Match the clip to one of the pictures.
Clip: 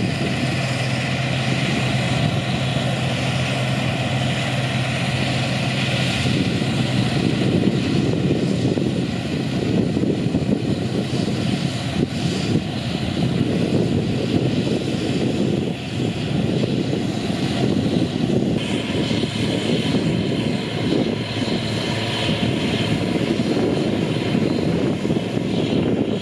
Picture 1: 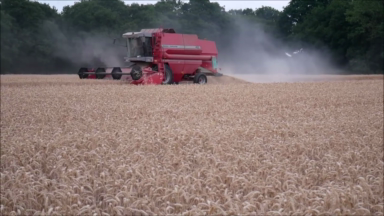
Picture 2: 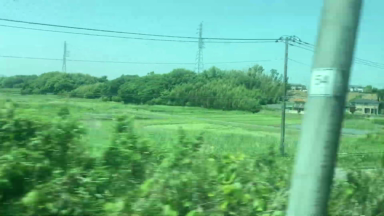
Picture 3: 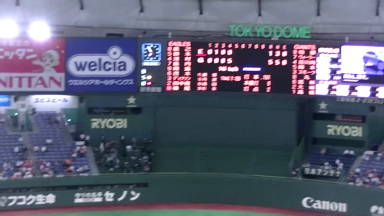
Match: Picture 1